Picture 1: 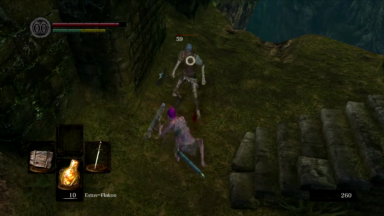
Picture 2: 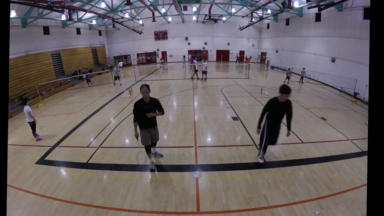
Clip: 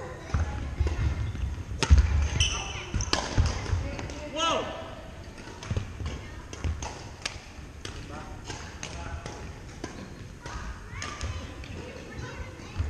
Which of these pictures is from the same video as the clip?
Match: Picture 2